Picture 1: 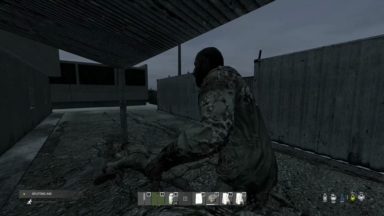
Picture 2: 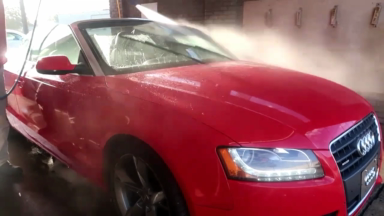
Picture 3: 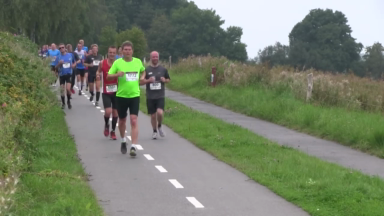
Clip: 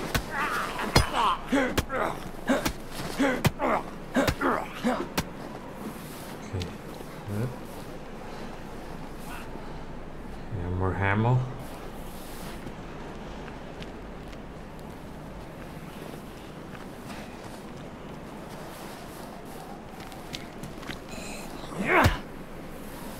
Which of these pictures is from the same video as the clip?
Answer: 1